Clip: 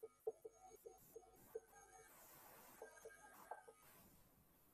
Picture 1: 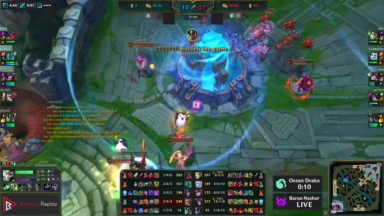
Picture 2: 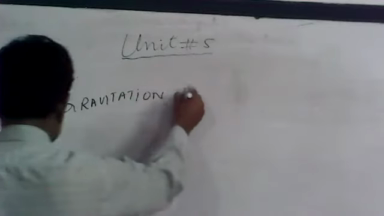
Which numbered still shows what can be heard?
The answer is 2